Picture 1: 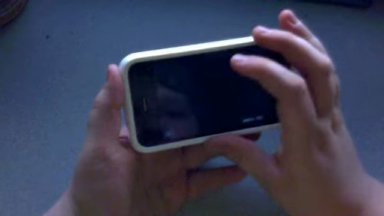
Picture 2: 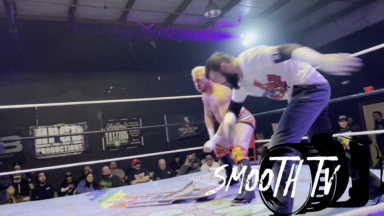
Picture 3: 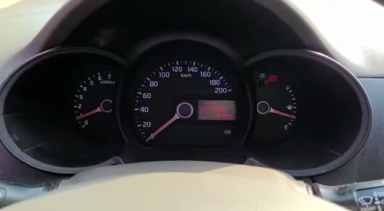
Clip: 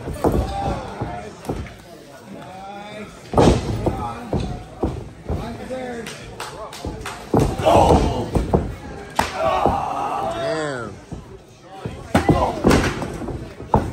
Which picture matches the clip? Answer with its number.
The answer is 2